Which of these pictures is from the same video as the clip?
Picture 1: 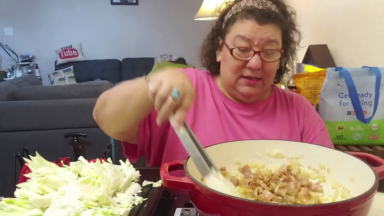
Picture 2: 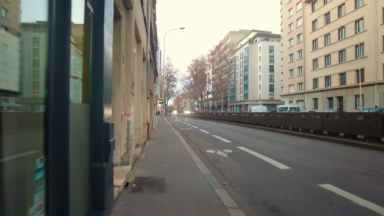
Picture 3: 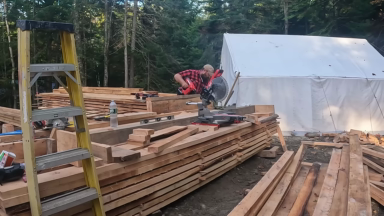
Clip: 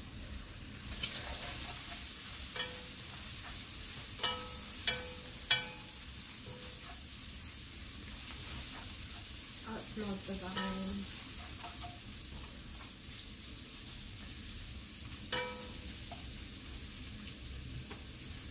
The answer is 1